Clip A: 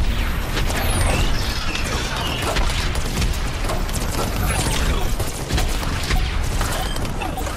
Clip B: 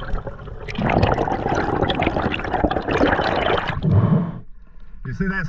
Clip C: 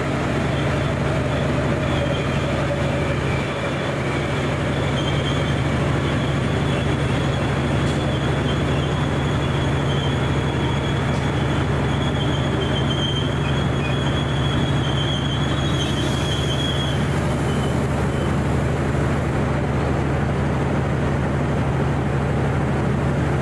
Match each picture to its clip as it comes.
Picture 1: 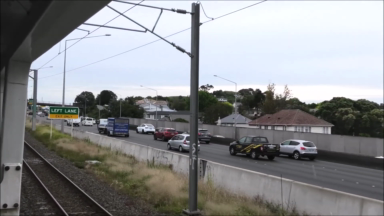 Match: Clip C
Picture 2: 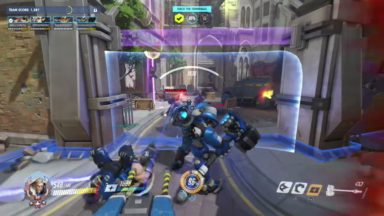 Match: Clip A